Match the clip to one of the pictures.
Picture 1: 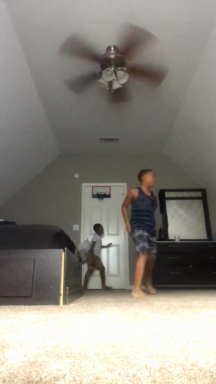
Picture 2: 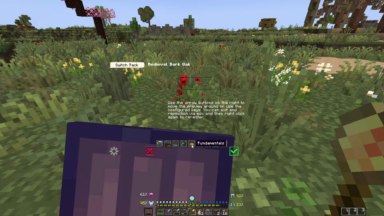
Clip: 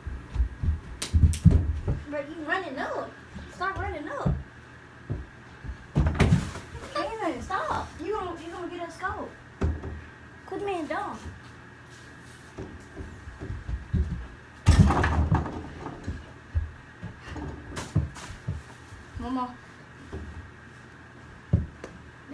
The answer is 1